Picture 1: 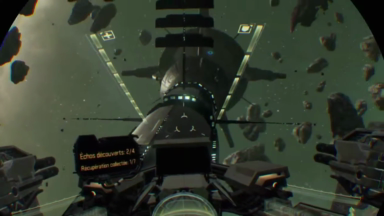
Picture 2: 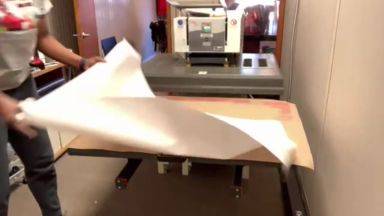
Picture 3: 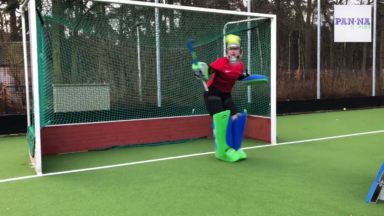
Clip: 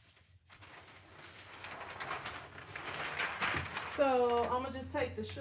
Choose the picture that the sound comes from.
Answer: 2